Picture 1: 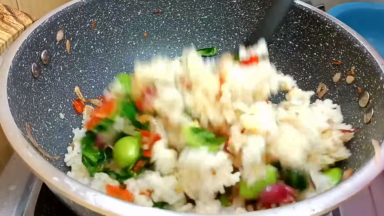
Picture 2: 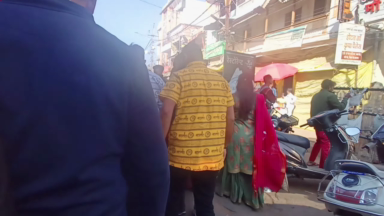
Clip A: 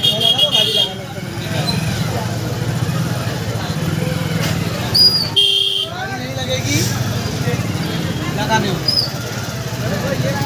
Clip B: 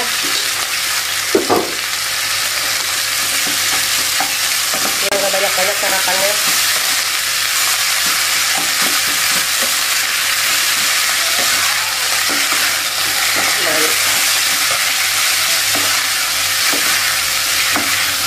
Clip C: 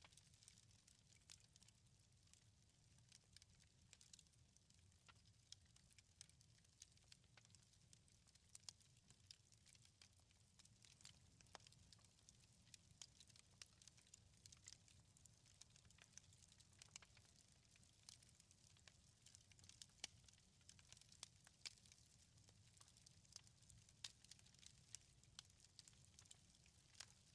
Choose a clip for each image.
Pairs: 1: B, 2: A